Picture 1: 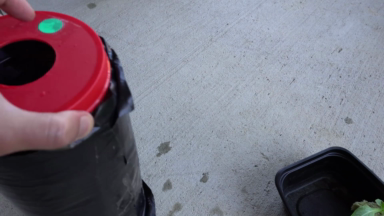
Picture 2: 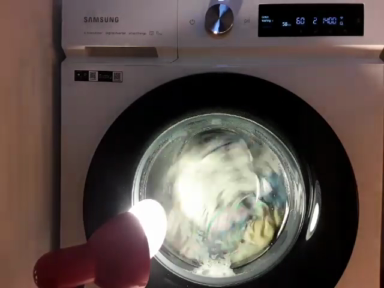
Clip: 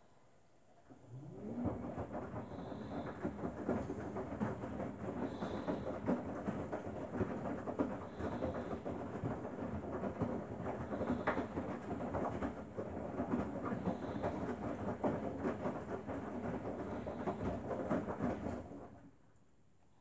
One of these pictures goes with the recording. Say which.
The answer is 2